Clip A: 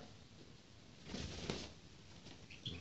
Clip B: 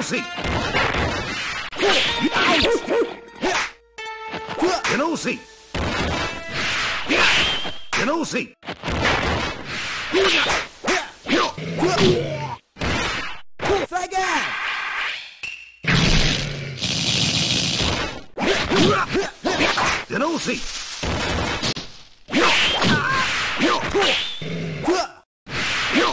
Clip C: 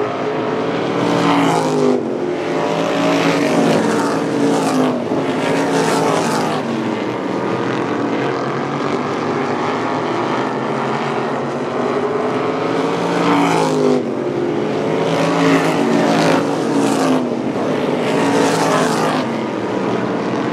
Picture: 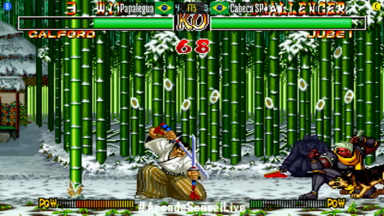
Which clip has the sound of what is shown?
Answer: B